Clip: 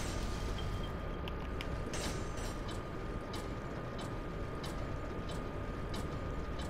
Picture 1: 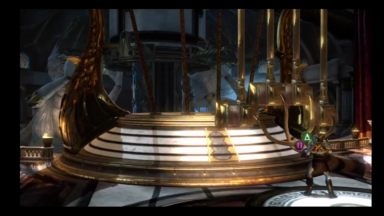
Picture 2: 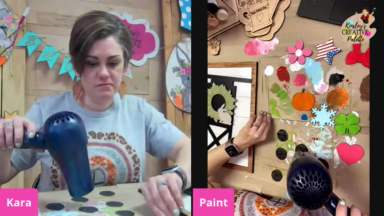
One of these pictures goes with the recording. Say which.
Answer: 1